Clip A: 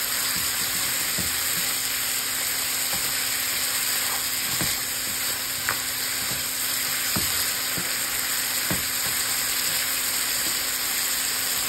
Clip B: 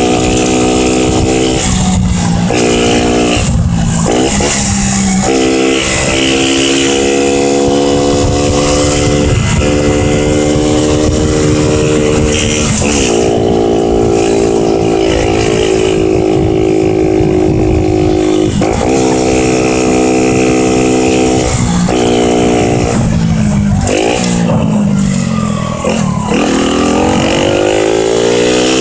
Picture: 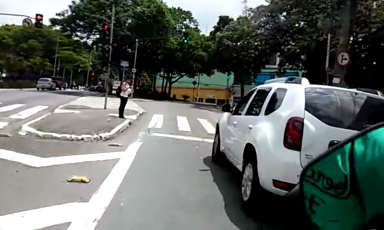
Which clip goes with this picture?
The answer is B